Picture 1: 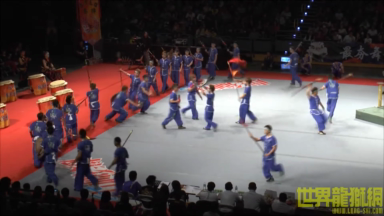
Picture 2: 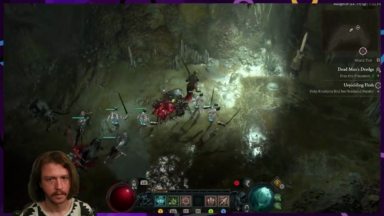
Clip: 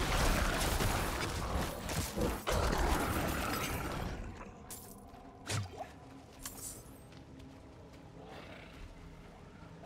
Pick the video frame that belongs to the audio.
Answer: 2